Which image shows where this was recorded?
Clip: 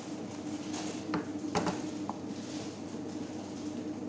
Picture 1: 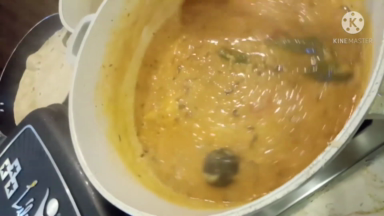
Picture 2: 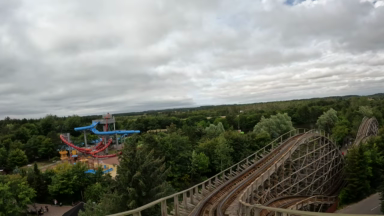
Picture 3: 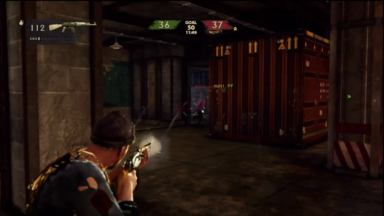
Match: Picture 1